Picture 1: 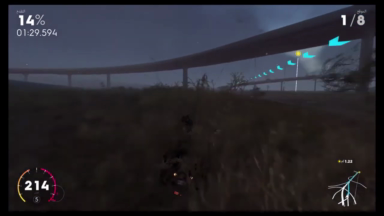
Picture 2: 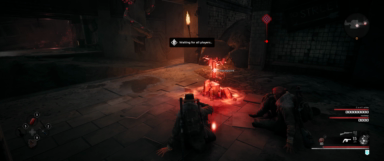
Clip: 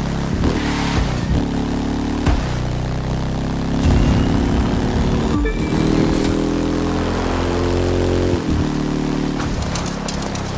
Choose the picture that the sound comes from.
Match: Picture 1